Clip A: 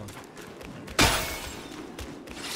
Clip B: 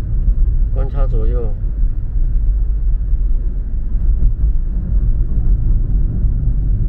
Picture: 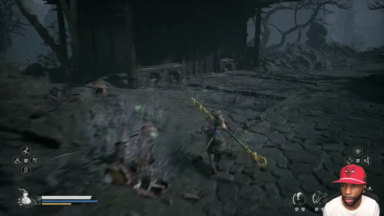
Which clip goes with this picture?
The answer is A